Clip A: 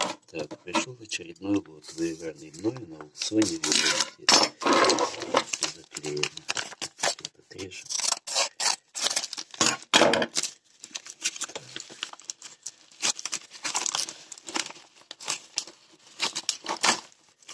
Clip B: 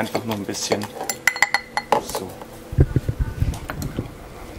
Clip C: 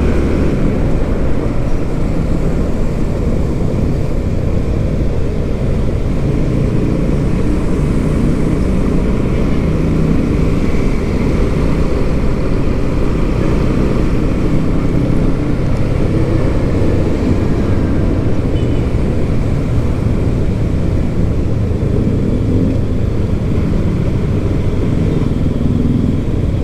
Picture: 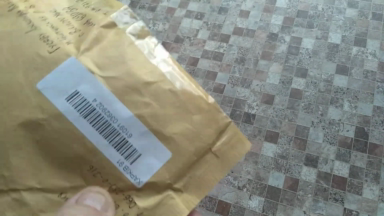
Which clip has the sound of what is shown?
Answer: A